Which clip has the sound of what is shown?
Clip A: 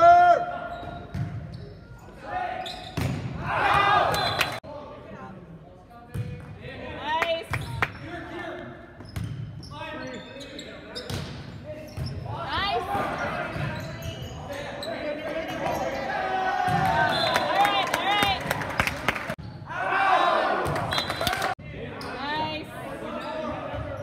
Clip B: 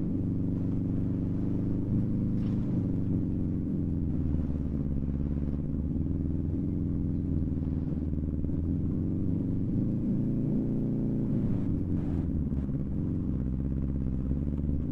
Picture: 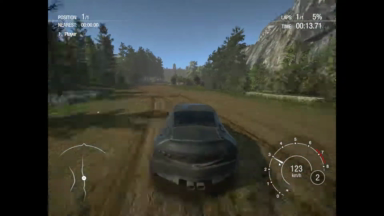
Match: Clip B